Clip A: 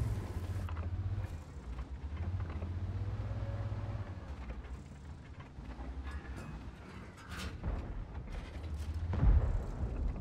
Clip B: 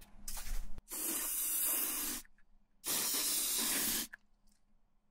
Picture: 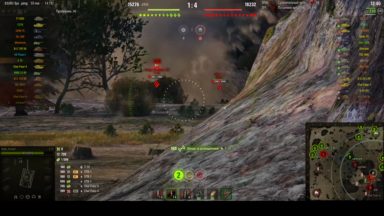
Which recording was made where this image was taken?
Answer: A